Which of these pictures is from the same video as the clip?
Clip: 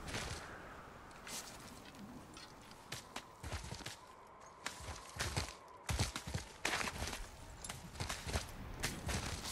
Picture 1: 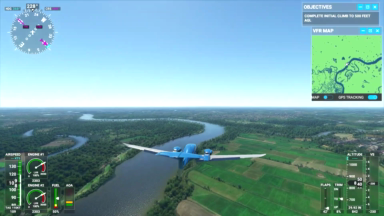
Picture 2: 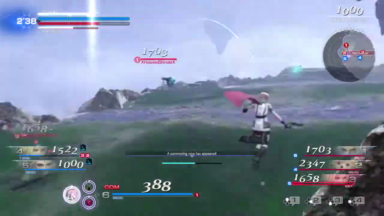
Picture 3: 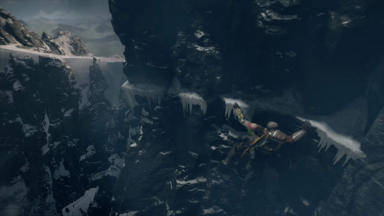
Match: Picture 3